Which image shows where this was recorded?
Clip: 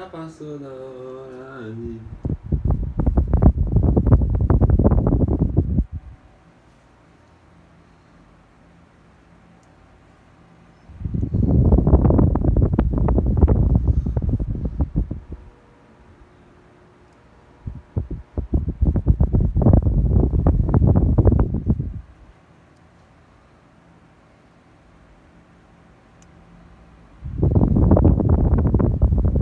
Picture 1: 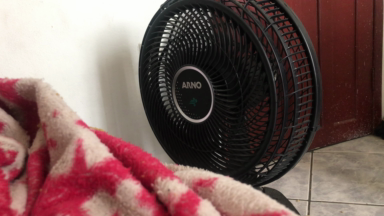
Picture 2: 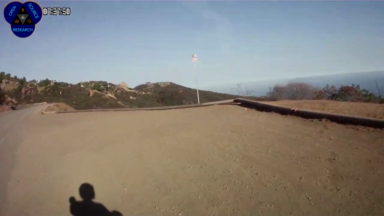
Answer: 1